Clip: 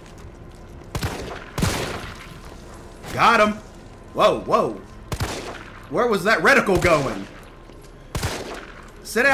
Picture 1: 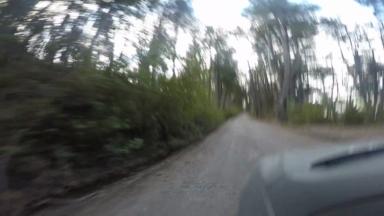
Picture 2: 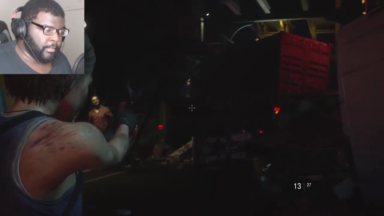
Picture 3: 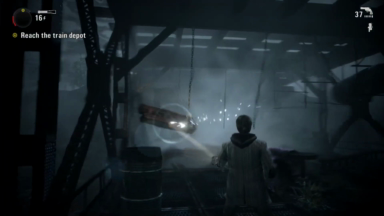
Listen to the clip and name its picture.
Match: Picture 2